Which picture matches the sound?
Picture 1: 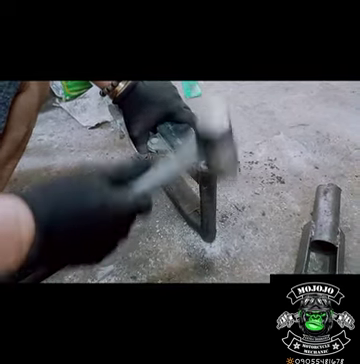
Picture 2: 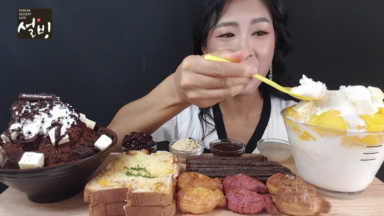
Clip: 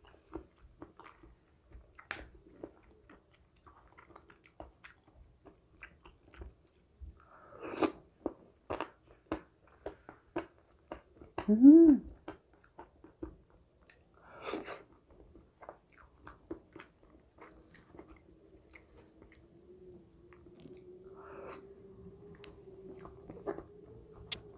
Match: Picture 2